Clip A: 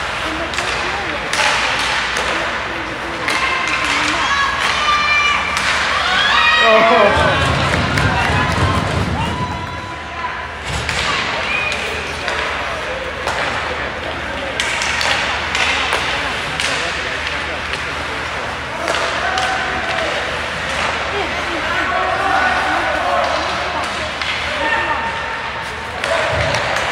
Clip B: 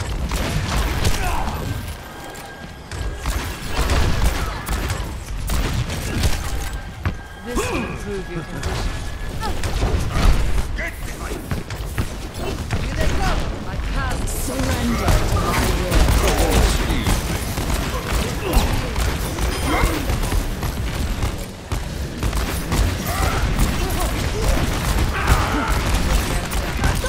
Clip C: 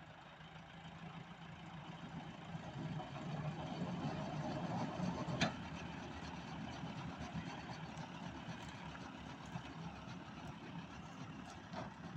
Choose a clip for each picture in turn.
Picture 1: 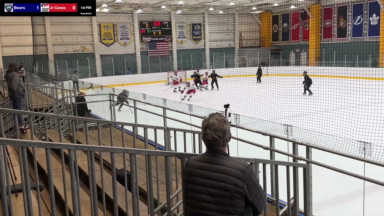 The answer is A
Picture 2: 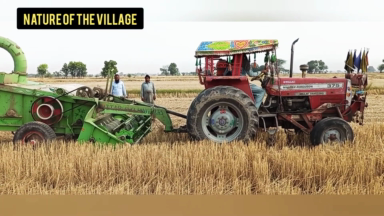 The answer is C